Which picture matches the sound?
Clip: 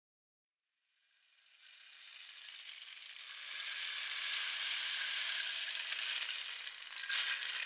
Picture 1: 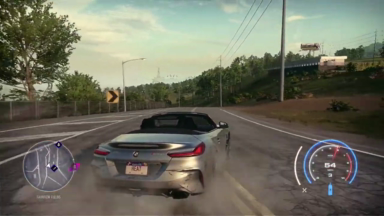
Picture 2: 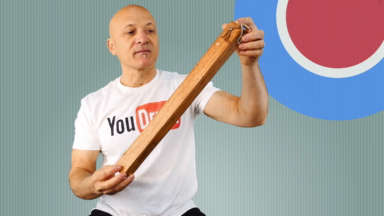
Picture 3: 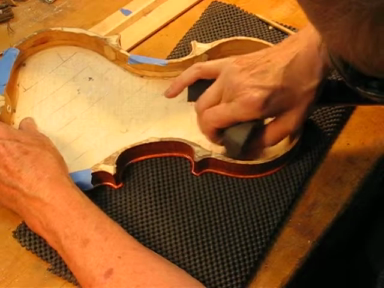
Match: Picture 2